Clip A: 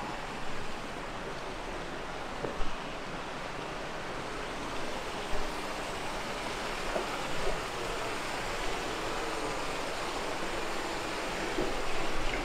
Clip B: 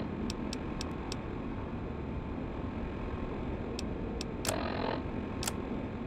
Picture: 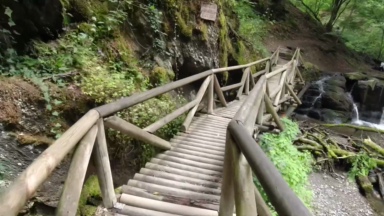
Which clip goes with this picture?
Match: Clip A